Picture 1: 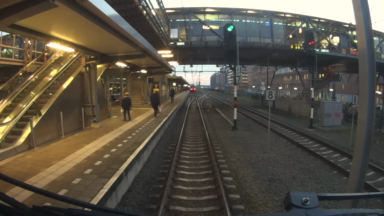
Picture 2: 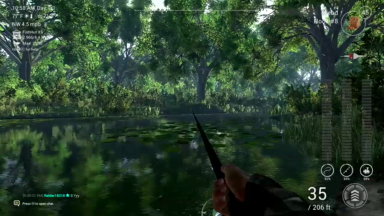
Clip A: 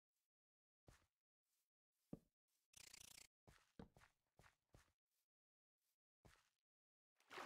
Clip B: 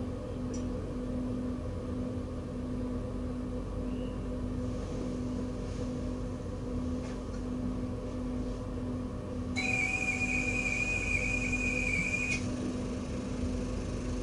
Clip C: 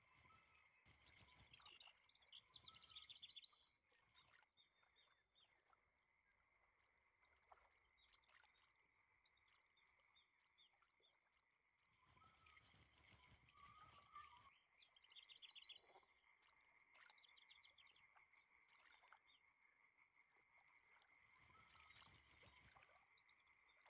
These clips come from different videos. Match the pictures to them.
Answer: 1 B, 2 C